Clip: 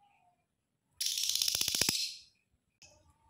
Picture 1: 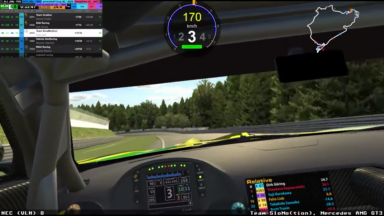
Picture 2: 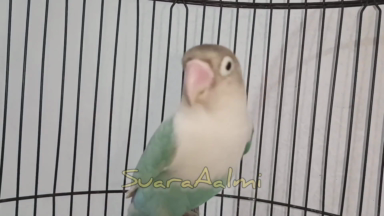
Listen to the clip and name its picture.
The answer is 2